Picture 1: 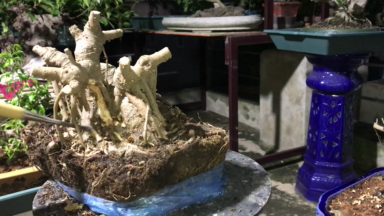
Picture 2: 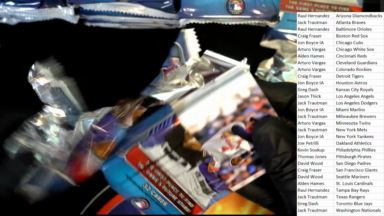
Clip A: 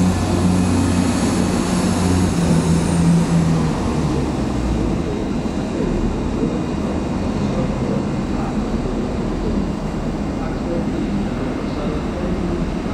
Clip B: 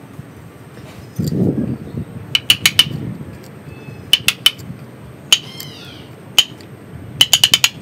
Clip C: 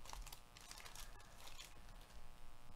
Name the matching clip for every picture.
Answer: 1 B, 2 C